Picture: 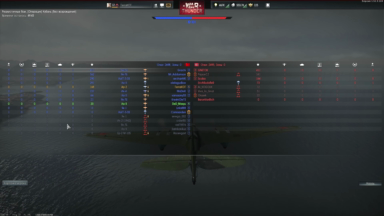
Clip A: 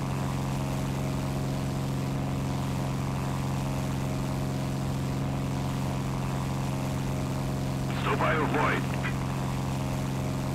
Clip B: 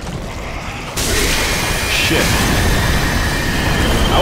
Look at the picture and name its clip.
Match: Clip A